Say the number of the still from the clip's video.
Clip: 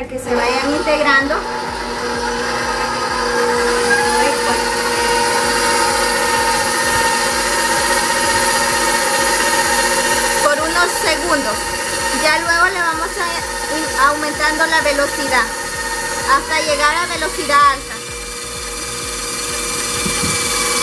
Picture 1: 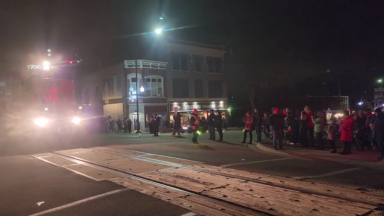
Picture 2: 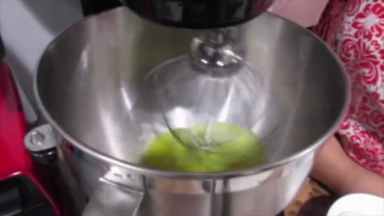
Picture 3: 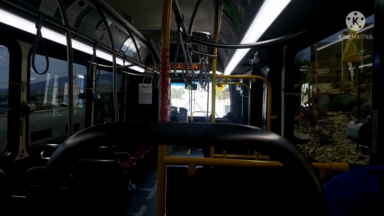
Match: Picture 2